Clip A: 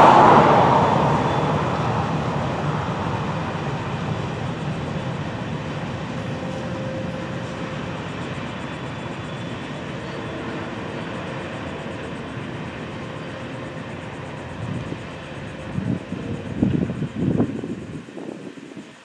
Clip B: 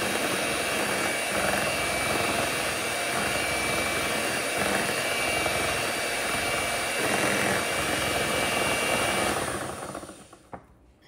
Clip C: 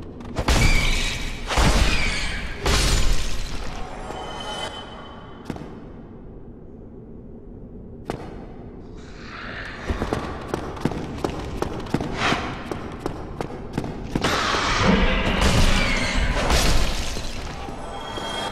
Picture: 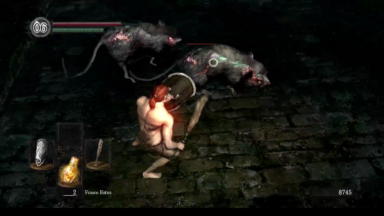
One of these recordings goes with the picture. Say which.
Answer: C